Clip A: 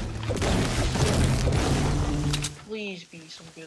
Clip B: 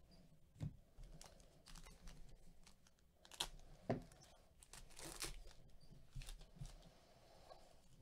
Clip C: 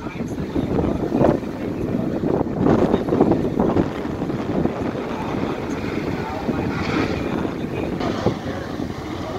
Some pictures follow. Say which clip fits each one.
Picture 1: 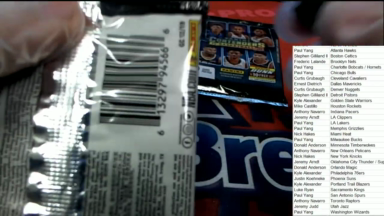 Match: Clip B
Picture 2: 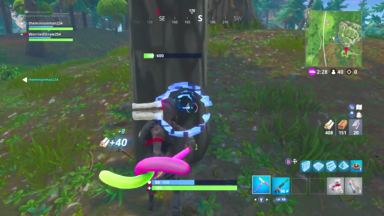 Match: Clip A